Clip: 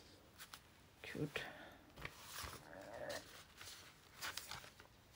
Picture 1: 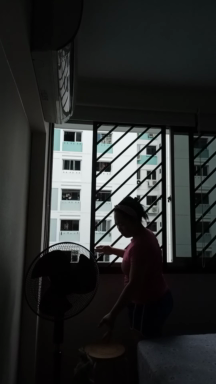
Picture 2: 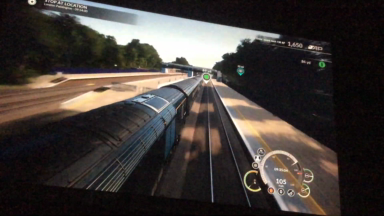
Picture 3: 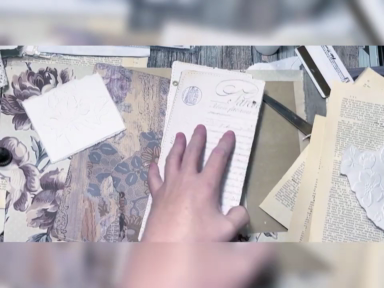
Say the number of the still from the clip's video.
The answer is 3